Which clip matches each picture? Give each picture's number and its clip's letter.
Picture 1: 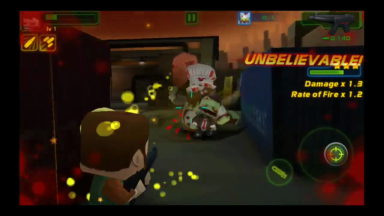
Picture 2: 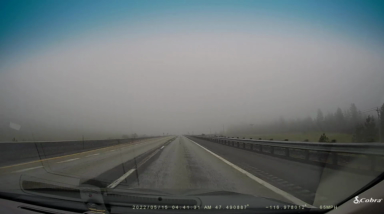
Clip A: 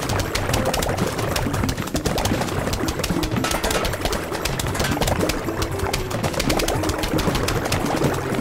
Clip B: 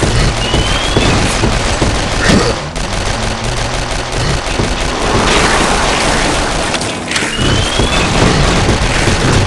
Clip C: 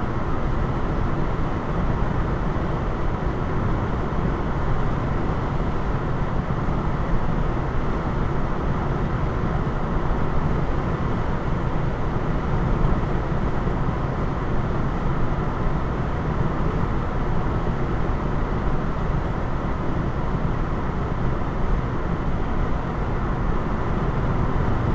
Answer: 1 B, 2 C